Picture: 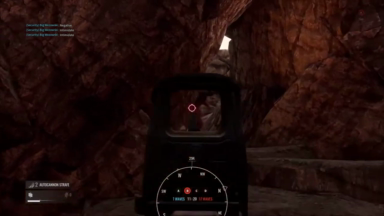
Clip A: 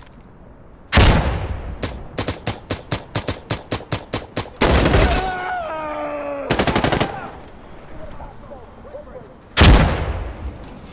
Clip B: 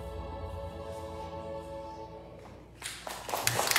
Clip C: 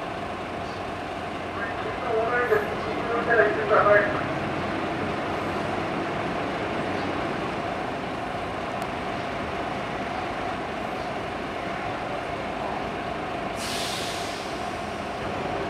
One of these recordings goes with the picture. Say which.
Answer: A